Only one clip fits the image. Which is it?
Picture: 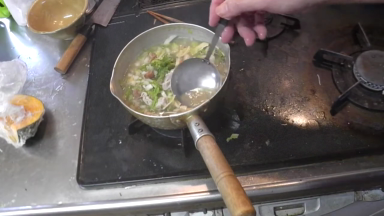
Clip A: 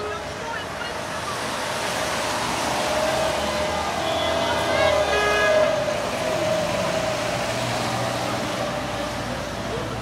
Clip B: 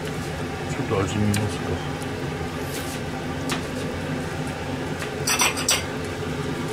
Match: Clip B